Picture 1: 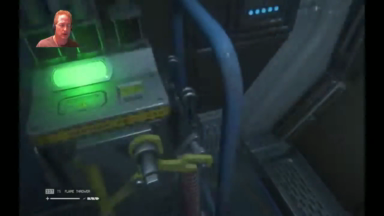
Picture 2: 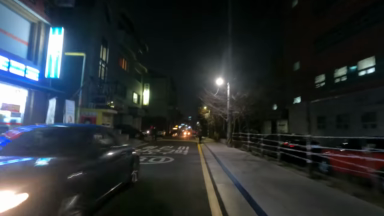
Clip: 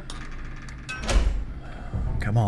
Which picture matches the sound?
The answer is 1